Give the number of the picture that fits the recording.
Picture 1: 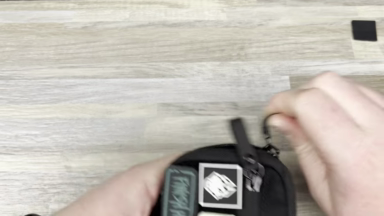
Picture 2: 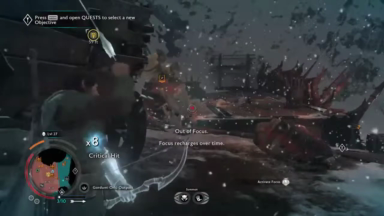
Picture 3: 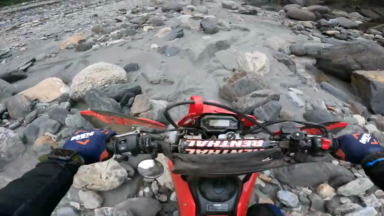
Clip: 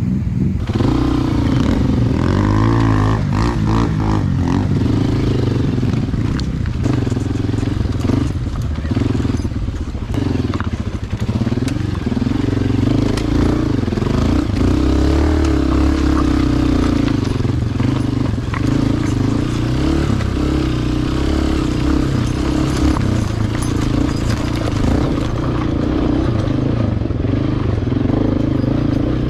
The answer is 3